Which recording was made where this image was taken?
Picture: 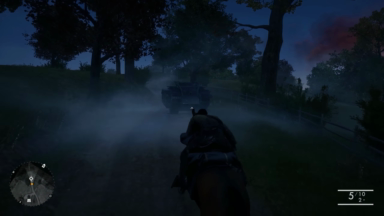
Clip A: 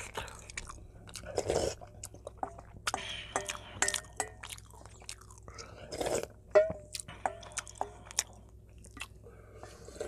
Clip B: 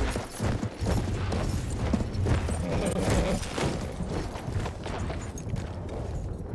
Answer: B